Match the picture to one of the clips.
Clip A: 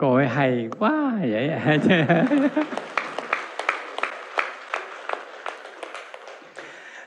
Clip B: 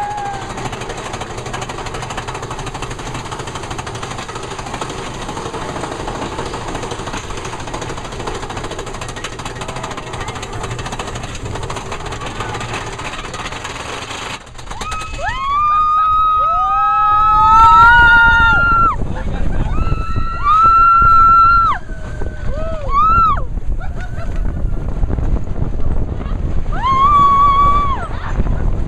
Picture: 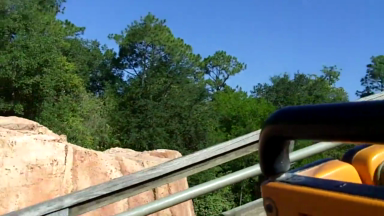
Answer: B